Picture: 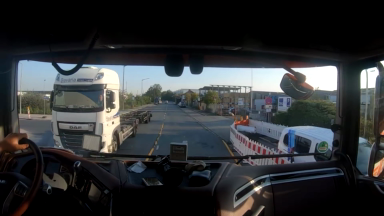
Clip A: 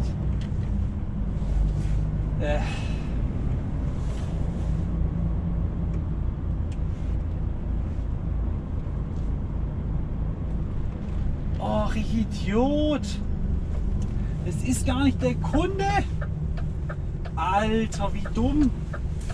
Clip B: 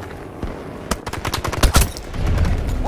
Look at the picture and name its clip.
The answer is A